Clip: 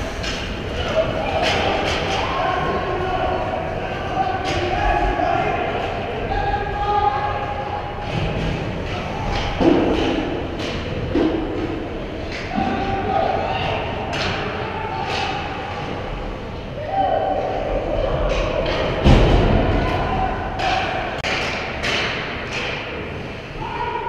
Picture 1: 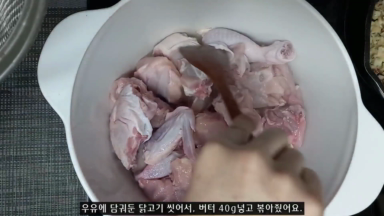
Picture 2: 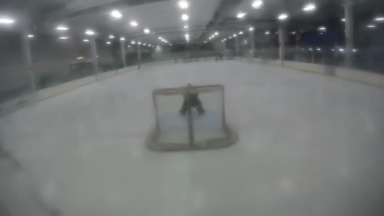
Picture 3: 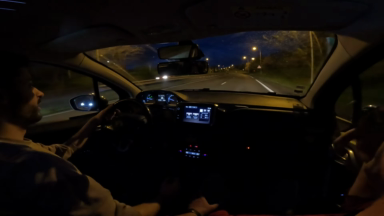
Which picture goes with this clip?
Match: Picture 2